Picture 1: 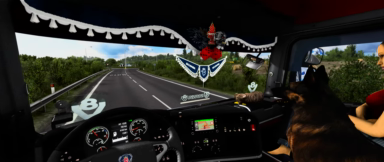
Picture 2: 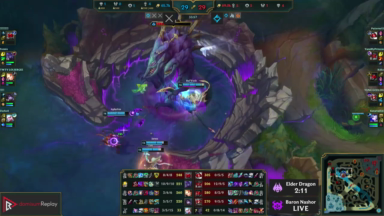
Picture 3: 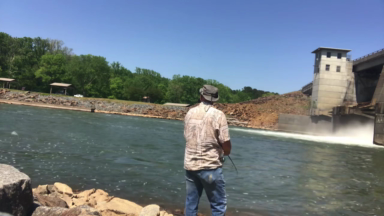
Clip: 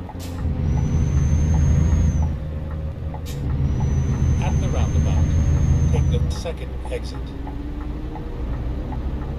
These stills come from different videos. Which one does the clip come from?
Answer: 1